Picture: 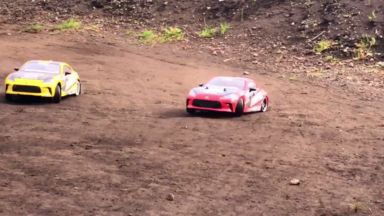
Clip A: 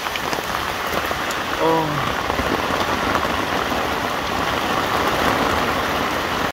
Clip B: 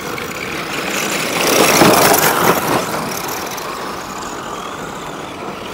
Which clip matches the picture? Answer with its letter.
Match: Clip B